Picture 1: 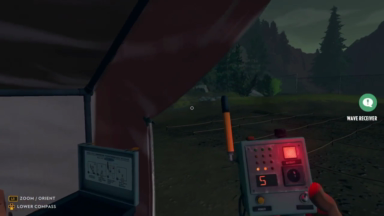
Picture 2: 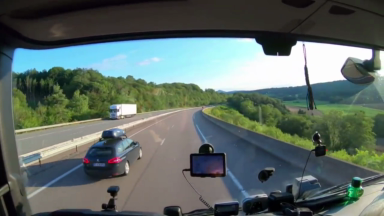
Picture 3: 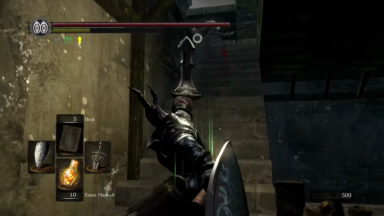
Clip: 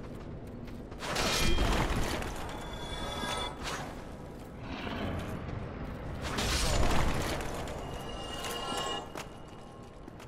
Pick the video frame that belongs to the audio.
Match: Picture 3